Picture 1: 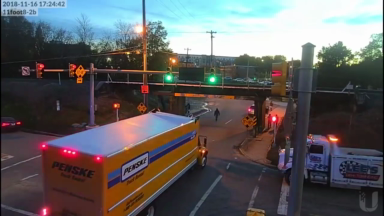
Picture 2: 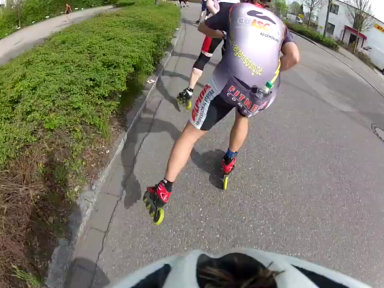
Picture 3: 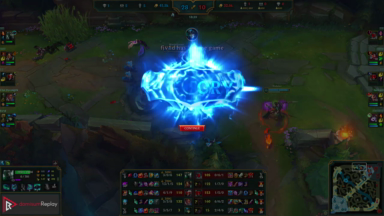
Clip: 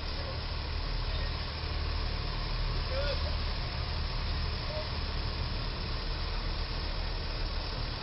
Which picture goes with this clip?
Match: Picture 1